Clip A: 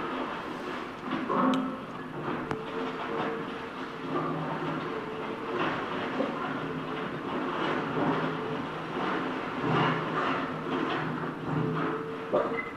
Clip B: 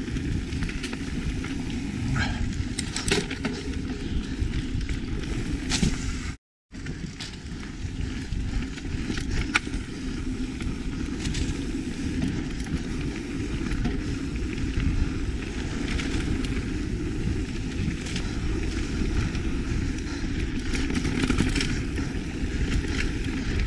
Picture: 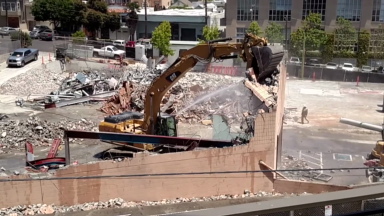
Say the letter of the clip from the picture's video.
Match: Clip A